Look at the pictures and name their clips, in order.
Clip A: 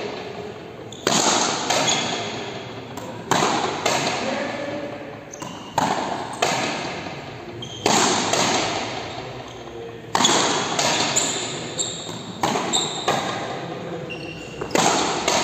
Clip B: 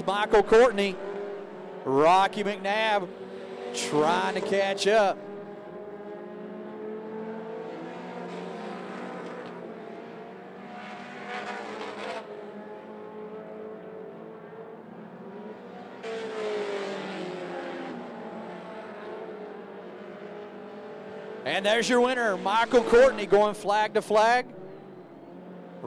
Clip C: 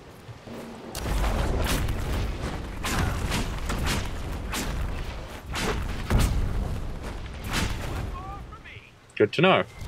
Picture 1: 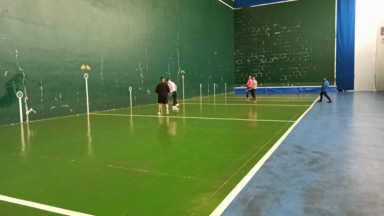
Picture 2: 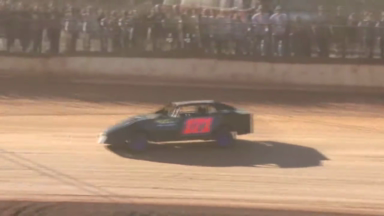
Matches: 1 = A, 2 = B